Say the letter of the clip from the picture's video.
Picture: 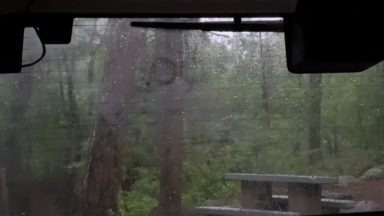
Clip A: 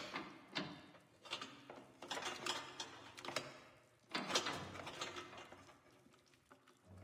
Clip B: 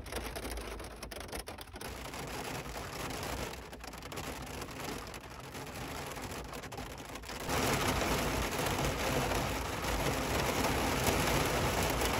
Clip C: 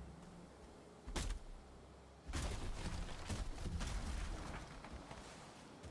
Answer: B